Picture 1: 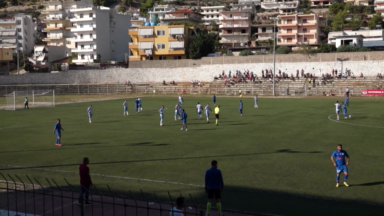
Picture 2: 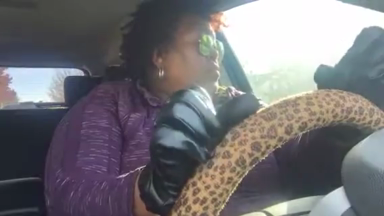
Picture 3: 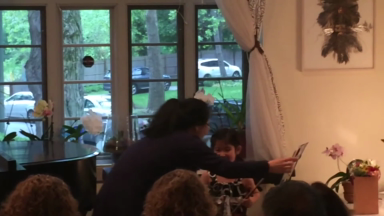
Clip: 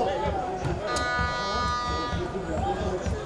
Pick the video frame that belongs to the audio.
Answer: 1